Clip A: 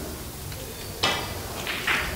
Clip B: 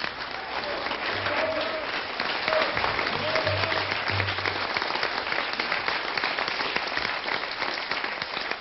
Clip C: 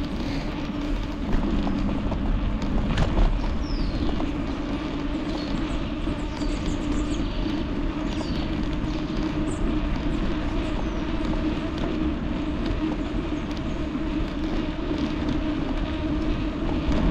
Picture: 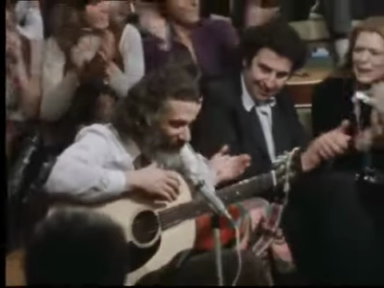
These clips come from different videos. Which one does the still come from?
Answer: B